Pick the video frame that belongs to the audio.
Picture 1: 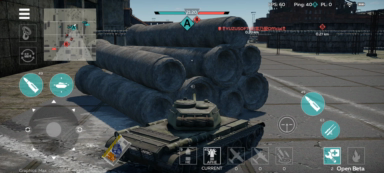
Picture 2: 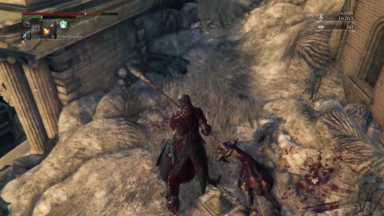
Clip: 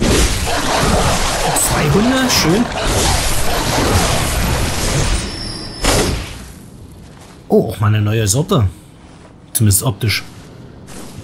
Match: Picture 2